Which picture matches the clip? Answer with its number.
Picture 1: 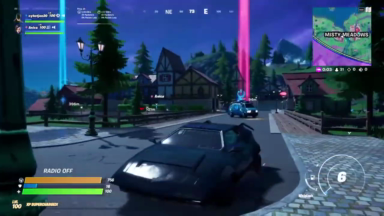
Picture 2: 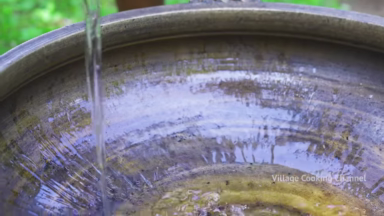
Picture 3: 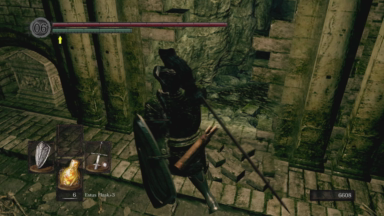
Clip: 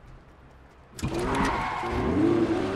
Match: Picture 1